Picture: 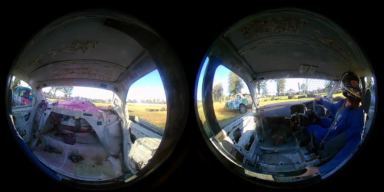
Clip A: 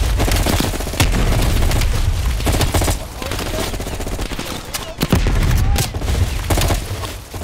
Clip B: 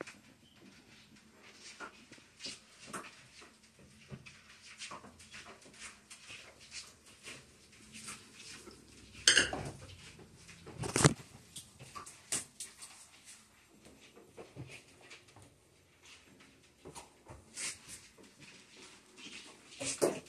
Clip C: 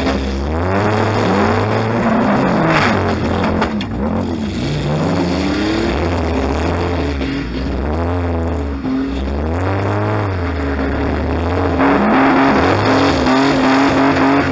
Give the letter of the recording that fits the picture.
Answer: C